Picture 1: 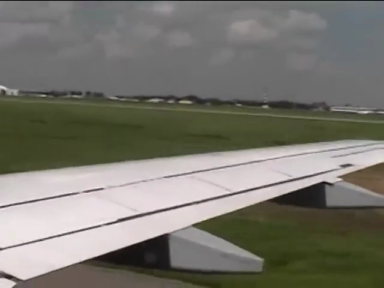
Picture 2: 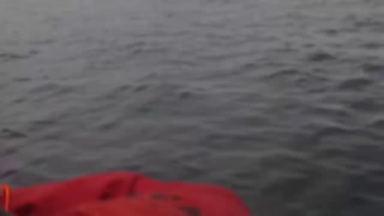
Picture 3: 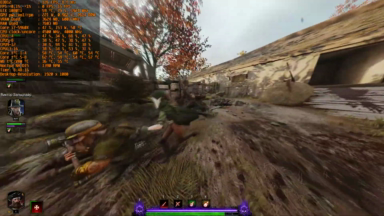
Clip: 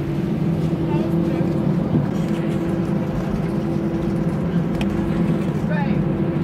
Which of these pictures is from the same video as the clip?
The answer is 1